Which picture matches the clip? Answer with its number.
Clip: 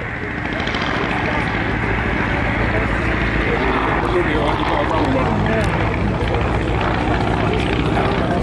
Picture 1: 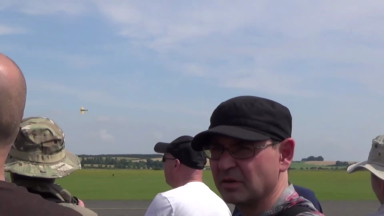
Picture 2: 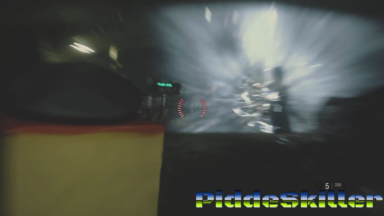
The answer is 1